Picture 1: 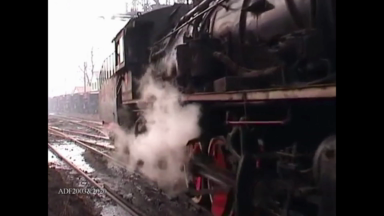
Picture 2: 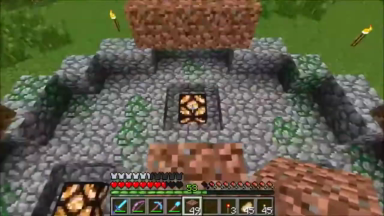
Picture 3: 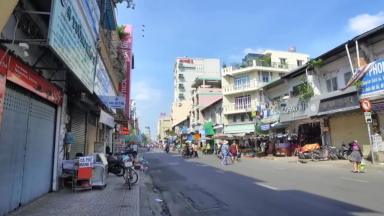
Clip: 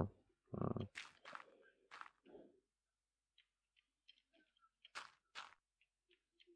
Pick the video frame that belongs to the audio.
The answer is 2